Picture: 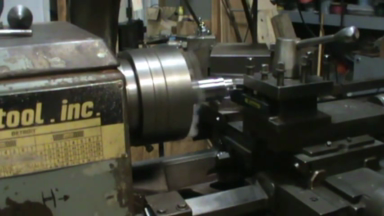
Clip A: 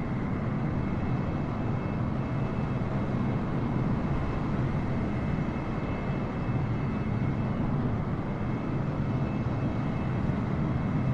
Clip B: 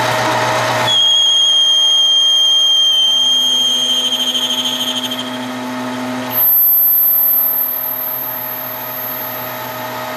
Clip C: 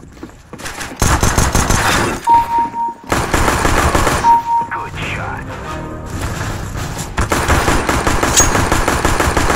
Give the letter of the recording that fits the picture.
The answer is B